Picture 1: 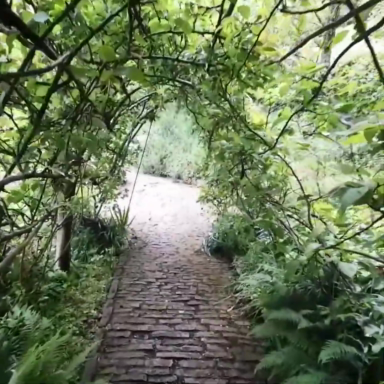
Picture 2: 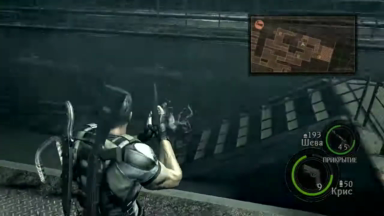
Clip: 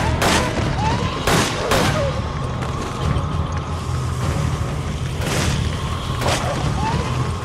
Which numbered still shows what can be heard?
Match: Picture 2